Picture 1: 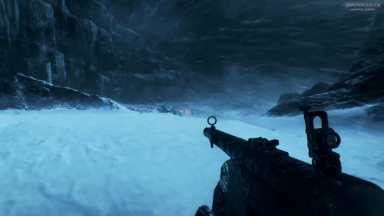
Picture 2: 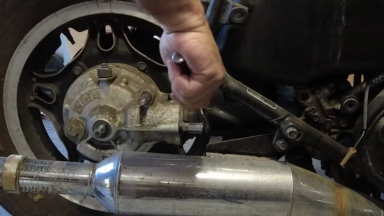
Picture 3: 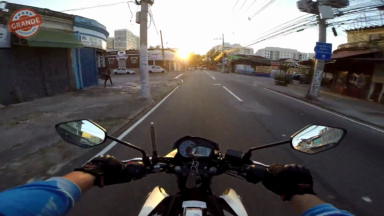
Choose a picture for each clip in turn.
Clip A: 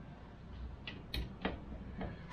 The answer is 2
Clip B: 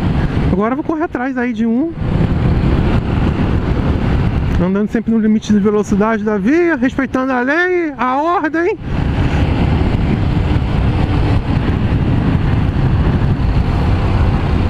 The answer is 3